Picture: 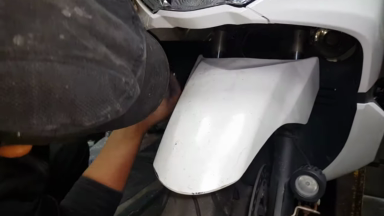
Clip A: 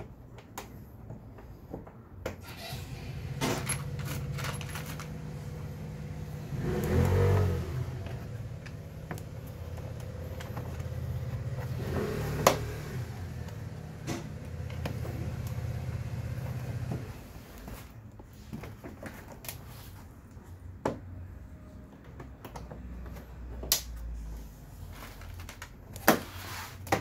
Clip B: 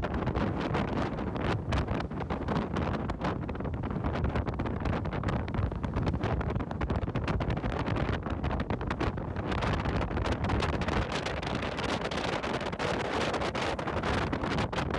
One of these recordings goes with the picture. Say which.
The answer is A